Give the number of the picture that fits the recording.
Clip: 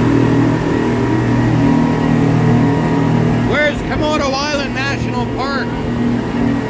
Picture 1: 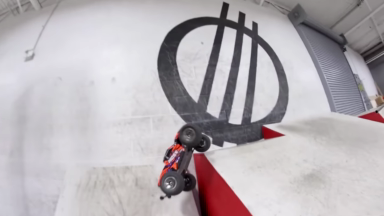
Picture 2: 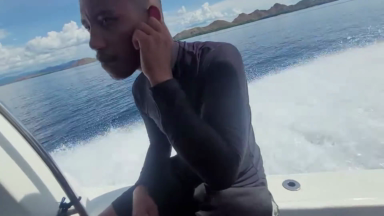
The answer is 2